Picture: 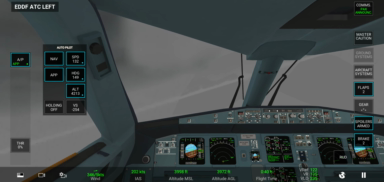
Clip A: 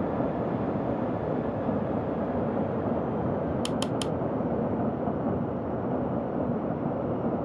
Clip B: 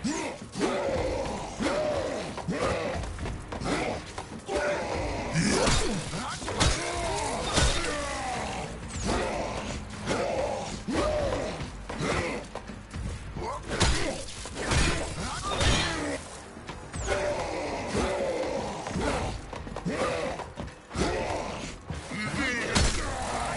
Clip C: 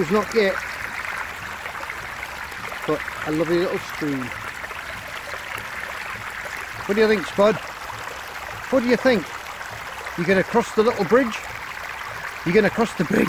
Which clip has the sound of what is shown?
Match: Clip A